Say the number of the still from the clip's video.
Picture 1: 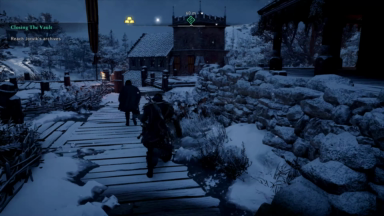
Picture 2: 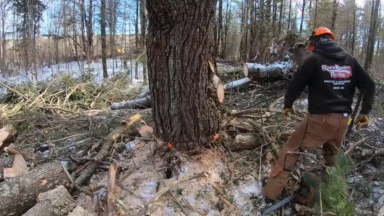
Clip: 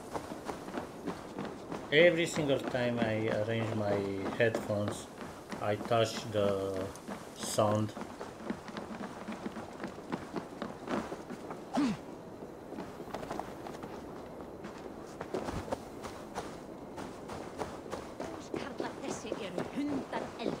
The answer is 1